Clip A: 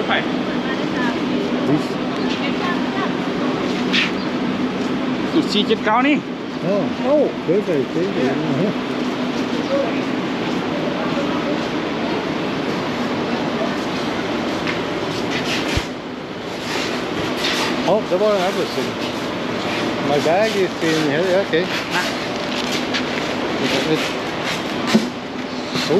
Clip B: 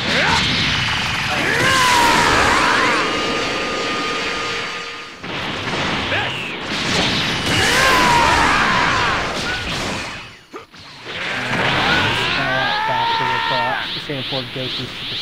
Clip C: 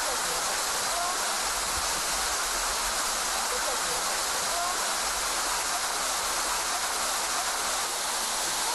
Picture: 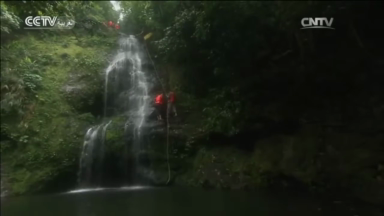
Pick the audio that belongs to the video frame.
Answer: C